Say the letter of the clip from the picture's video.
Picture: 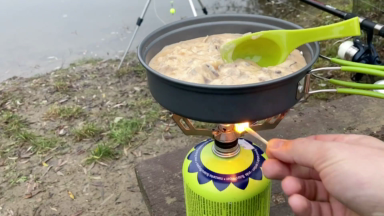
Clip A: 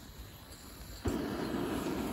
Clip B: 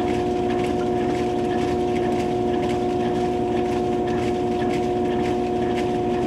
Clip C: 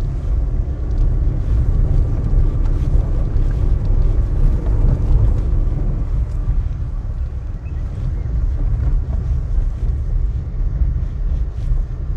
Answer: A